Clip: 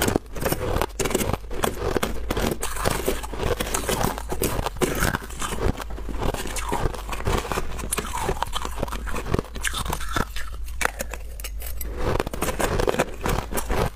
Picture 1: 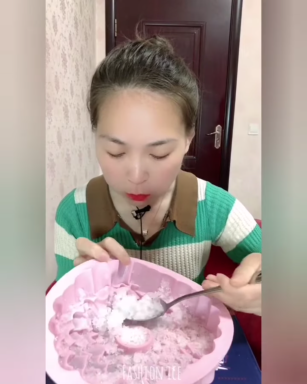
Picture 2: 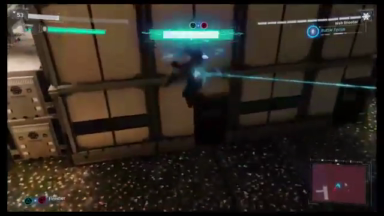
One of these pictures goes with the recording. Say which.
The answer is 1